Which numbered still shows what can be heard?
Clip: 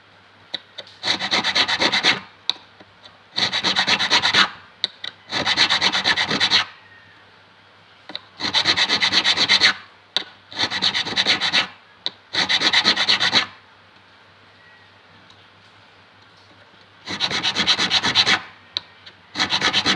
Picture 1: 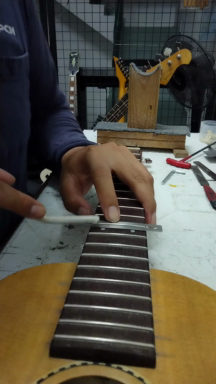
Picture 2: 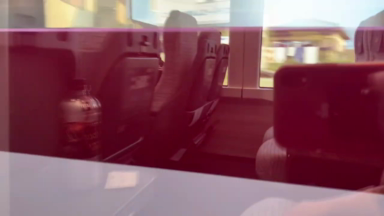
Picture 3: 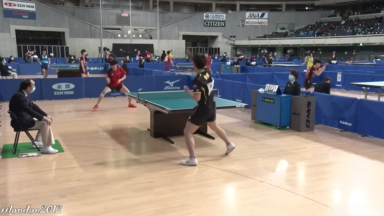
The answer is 1